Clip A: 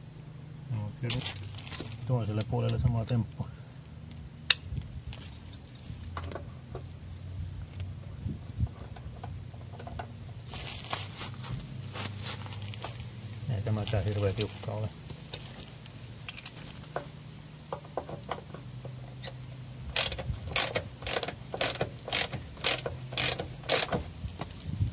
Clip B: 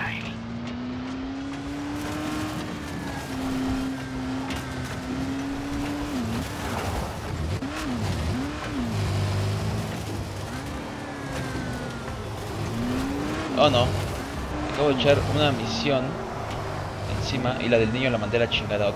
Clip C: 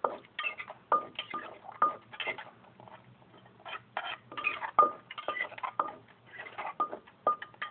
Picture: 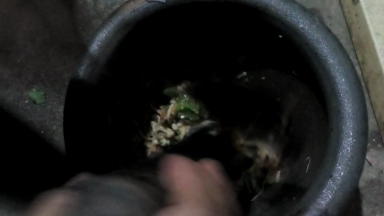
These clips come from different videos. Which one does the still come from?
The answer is C